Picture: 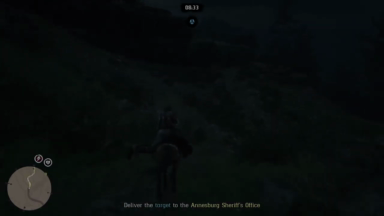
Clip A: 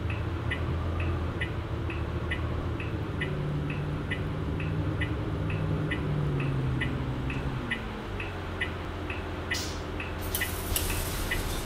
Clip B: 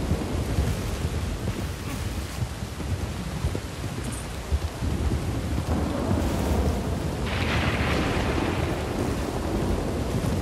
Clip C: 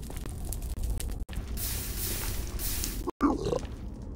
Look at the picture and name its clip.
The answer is B